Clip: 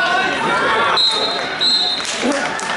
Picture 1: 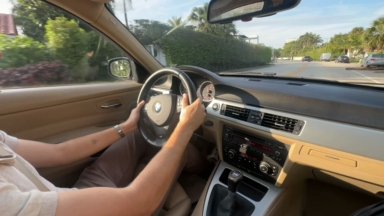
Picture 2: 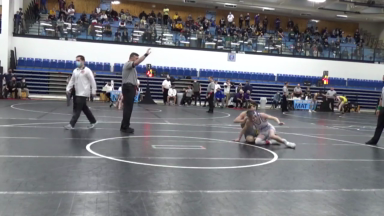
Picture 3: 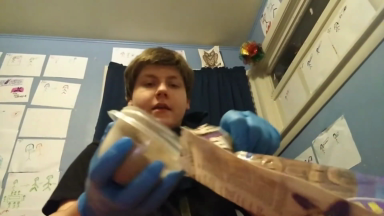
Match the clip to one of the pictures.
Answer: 2